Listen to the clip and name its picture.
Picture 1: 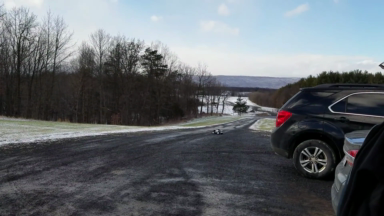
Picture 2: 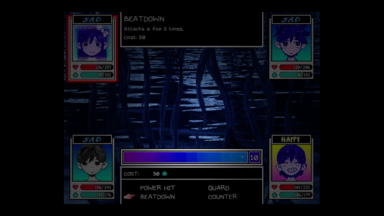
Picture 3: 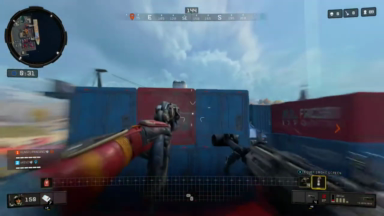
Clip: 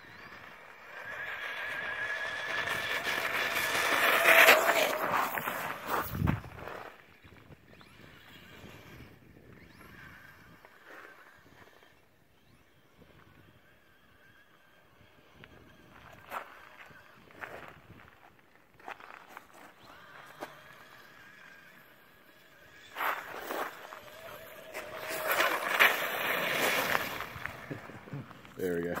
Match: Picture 1